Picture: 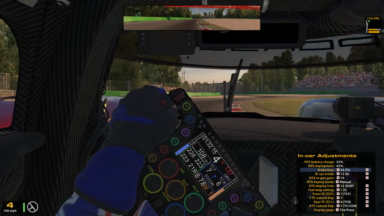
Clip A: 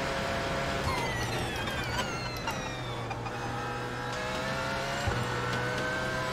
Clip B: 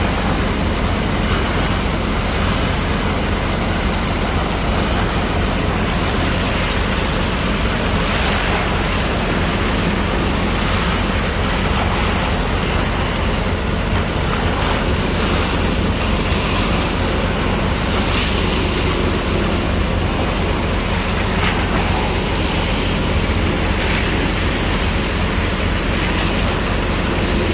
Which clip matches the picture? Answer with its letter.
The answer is A